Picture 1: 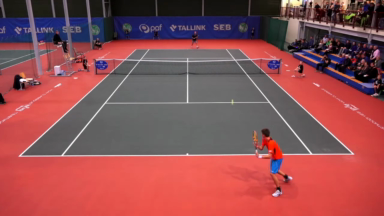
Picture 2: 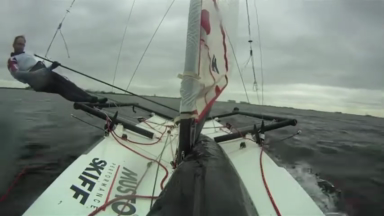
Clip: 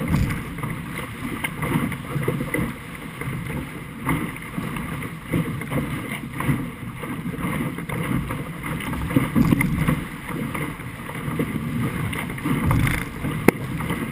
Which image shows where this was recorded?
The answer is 2